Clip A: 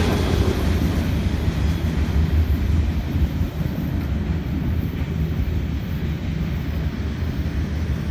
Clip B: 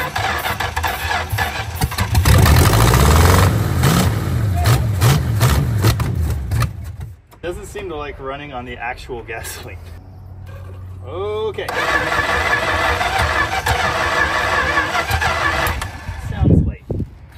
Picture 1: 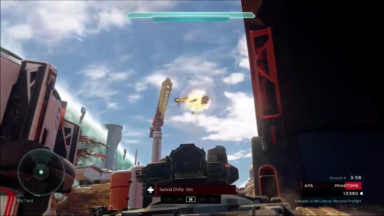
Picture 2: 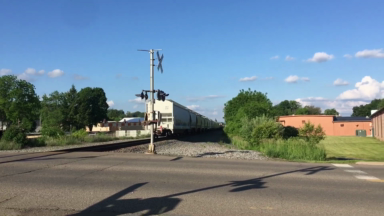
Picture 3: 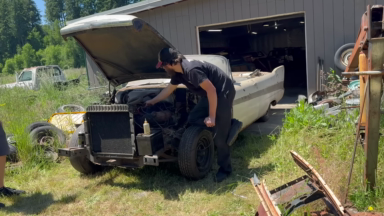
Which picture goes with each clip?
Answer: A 2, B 3